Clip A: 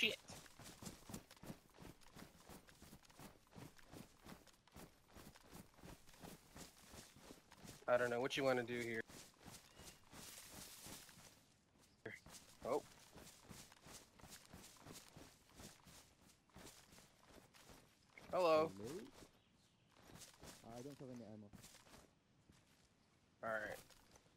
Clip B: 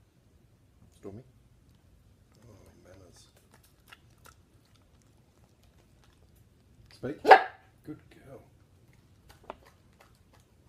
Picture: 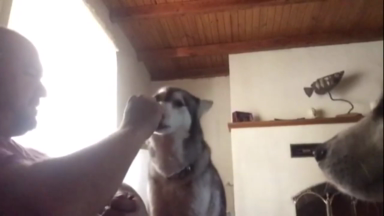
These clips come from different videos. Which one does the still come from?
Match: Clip B